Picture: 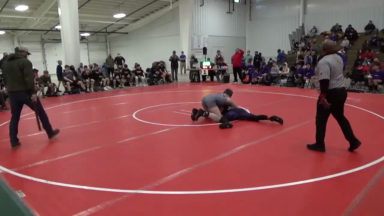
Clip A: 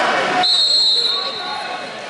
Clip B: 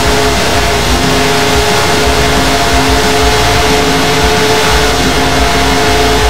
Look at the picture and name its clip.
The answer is A